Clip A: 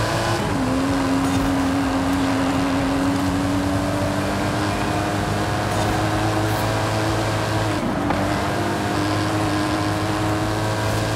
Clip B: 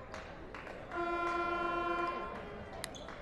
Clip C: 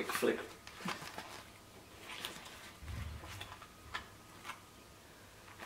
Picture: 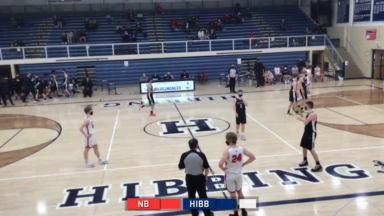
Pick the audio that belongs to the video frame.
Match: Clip B